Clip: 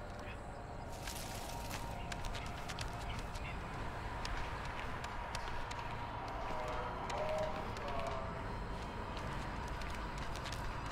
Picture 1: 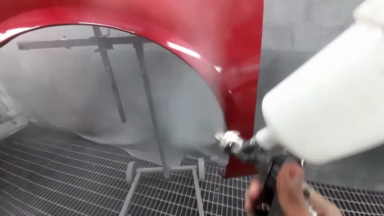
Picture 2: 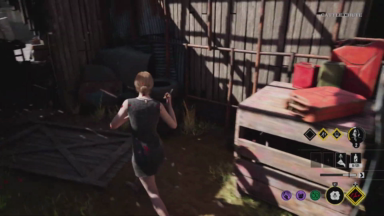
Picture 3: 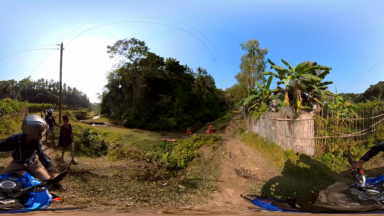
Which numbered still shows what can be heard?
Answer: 2